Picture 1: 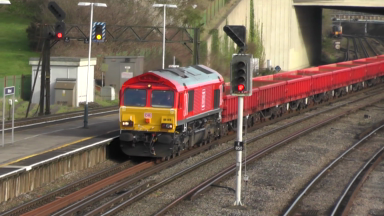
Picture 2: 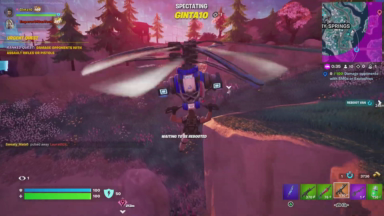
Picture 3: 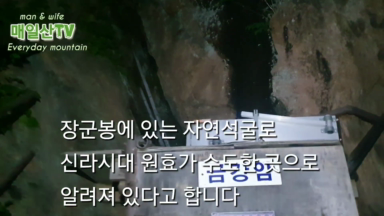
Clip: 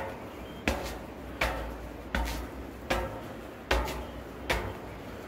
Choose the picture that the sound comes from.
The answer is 3